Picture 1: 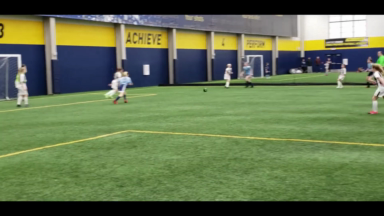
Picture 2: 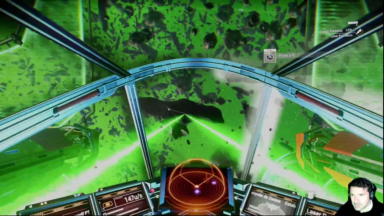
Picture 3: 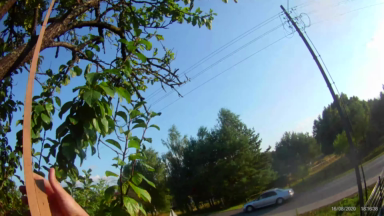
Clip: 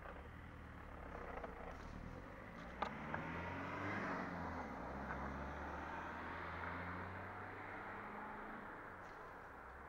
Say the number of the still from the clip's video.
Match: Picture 3